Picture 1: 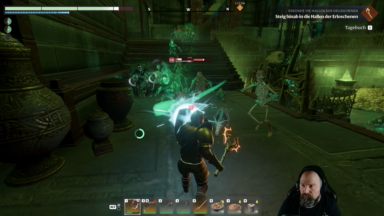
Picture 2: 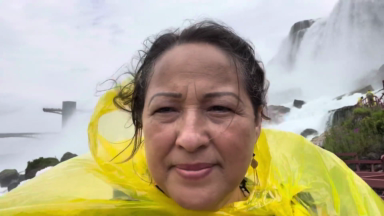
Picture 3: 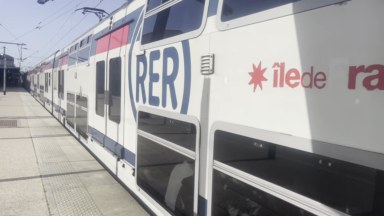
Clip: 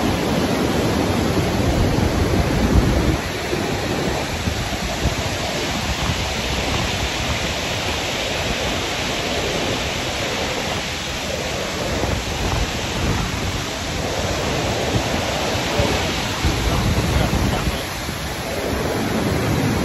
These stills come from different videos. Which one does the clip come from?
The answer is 2